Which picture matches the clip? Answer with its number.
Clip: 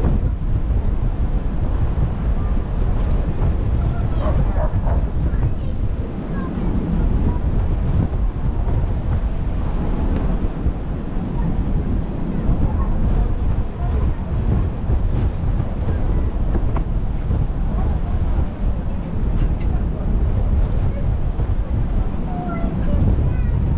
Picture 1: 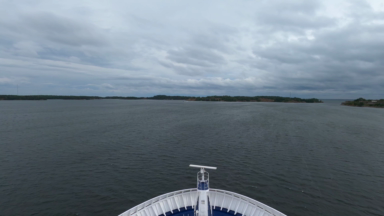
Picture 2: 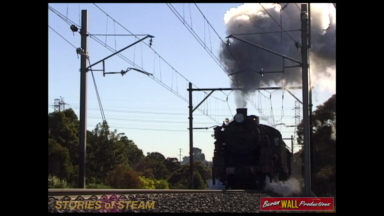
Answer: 1